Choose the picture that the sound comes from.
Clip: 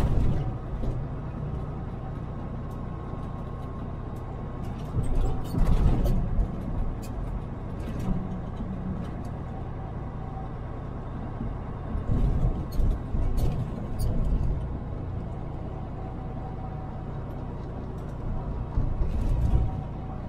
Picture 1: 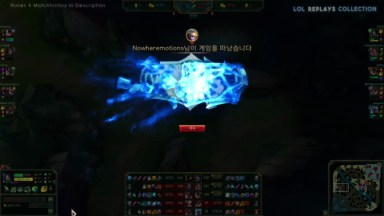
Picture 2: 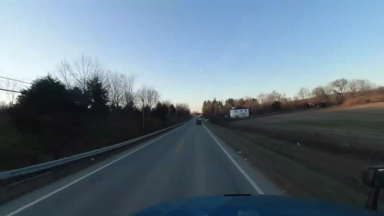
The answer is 2